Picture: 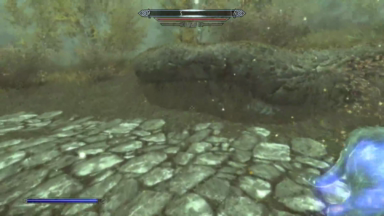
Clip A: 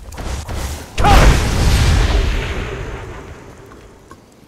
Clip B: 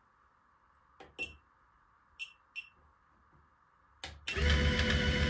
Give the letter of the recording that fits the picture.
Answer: A